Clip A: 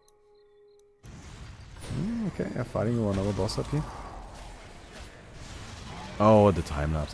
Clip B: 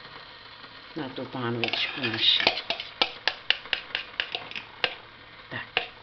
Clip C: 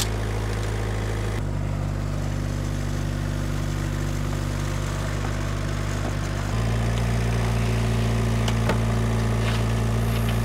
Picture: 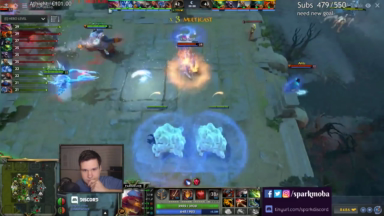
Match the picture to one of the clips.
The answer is A